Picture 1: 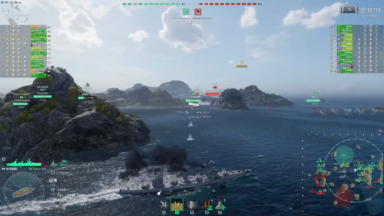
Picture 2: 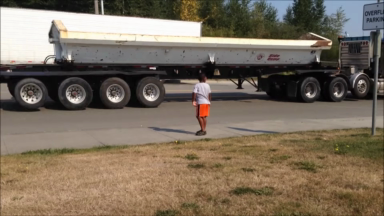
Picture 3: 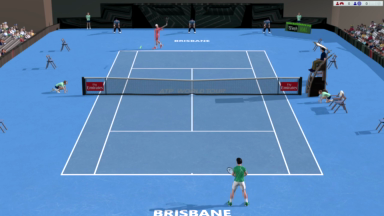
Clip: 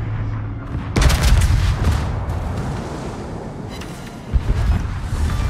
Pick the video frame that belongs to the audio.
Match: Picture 1